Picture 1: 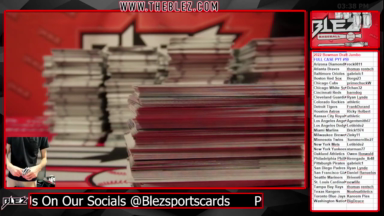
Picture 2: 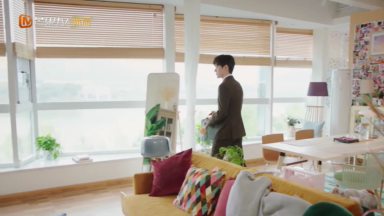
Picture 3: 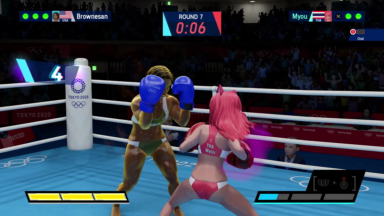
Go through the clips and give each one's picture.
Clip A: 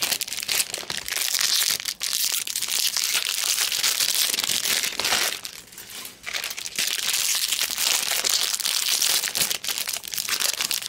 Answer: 1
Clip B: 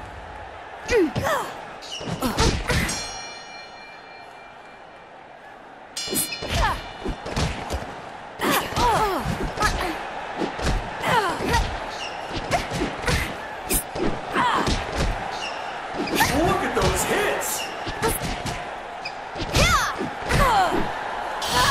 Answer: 3